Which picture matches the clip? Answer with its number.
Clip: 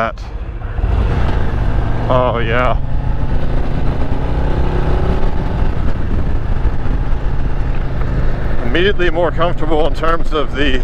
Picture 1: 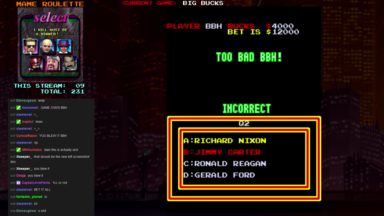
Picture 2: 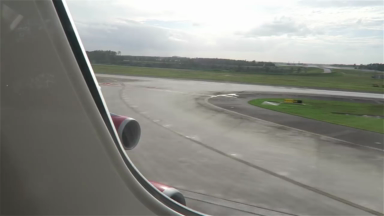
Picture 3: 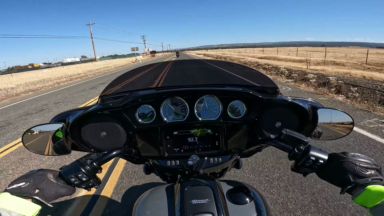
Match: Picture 3